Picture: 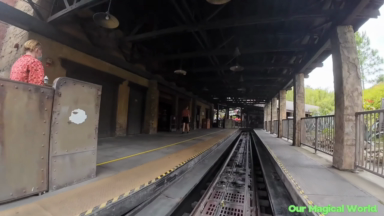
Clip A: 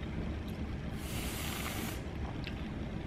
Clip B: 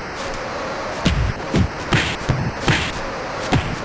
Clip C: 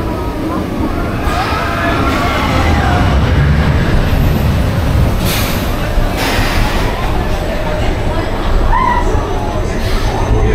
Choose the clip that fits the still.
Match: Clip C